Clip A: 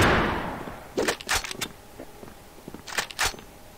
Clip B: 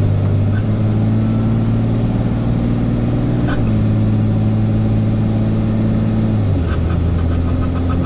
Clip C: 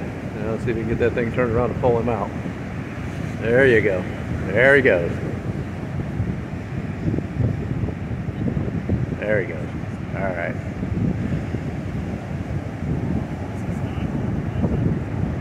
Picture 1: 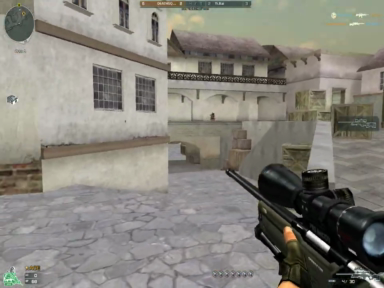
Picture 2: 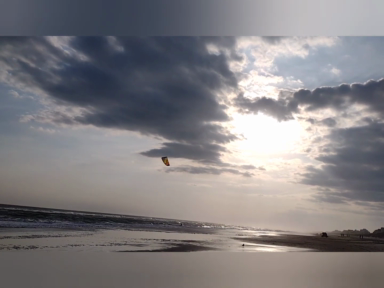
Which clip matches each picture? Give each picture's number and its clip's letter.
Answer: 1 A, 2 C